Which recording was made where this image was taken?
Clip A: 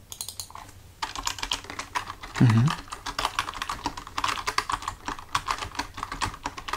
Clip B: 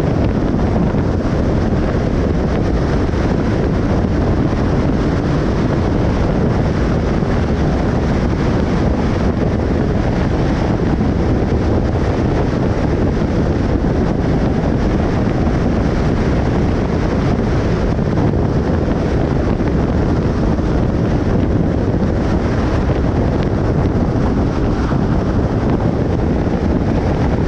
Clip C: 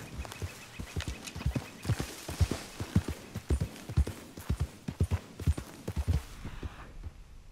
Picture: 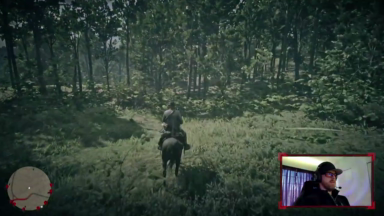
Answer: C